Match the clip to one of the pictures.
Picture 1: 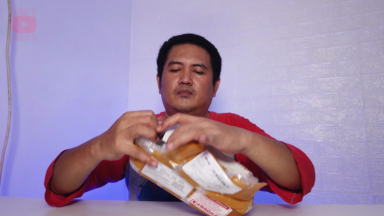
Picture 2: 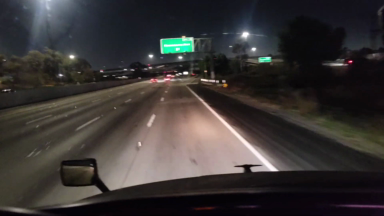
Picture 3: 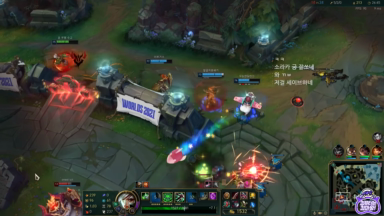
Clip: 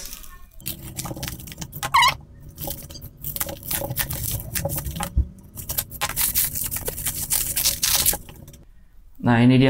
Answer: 1